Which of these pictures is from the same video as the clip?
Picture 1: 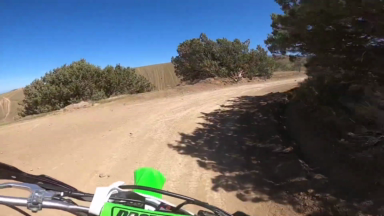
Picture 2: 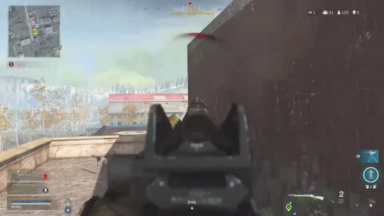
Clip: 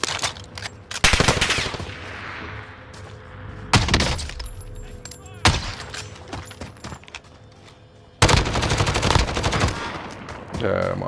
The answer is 2